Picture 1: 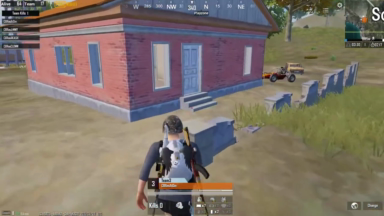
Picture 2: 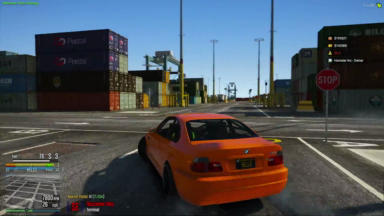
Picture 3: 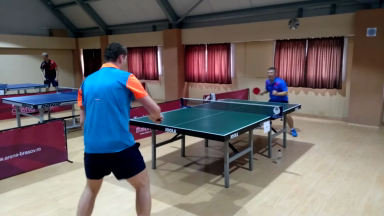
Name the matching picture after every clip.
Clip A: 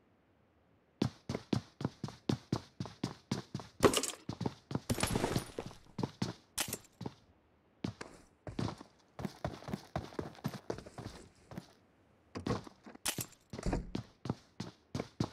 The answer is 1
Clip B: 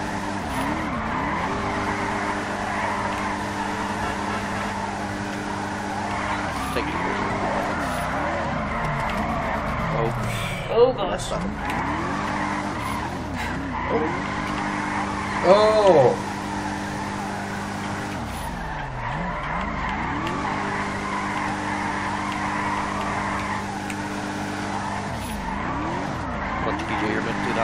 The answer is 2